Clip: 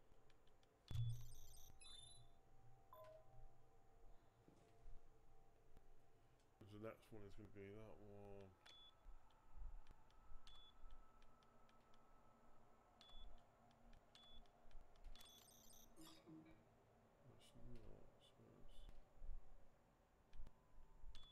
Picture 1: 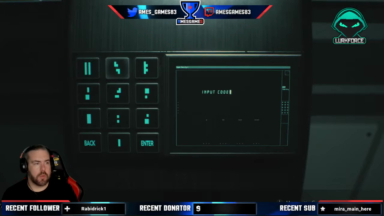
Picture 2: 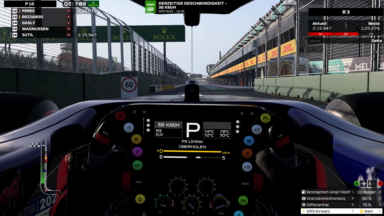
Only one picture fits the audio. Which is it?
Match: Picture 1